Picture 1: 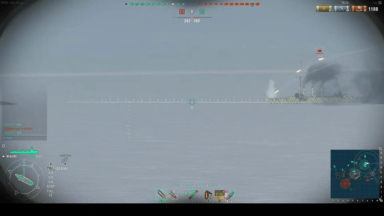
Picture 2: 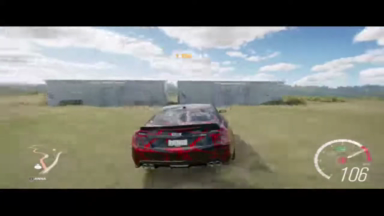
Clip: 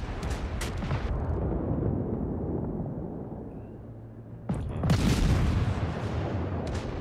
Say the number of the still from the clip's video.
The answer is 1